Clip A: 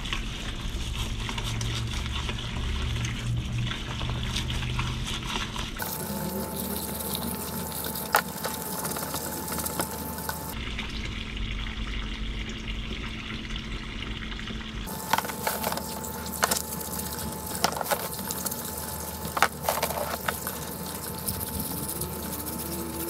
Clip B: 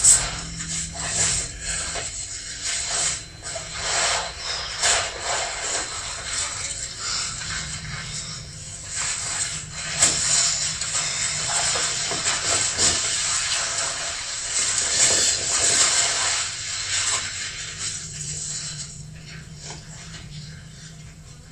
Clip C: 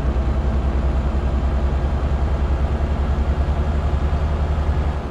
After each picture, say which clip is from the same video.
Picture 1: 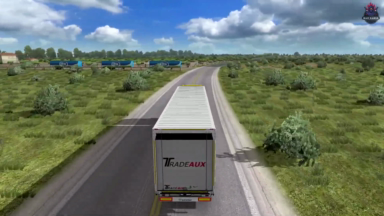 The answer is C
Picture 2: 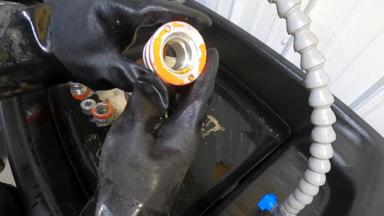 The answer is A